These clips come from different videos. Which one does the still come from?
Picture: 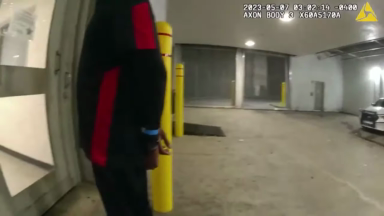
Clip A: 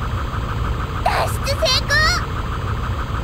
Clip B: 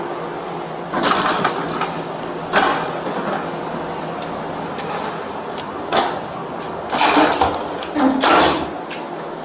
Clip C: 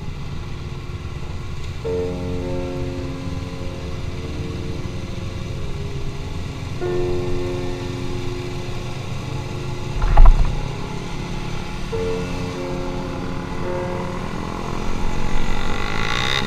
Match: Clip B